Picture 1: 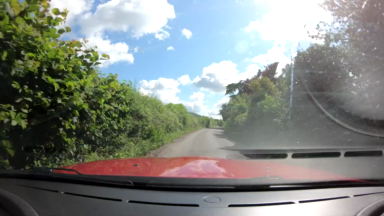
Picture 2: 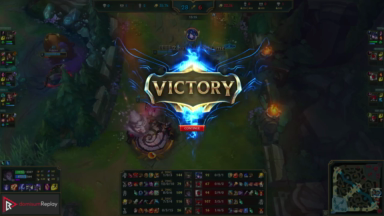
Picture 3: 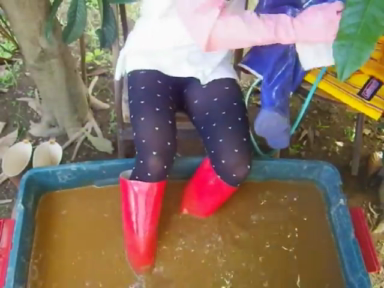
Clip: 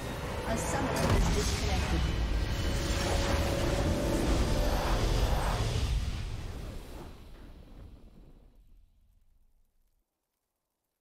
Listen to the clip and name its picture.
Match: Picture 2